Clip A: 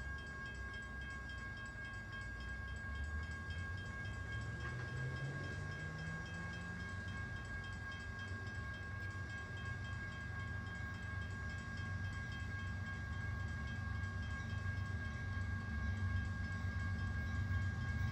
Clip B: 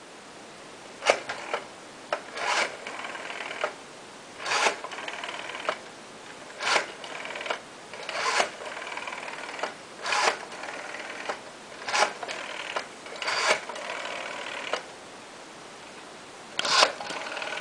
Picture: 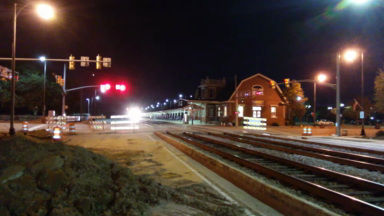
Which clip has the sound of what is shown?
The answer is A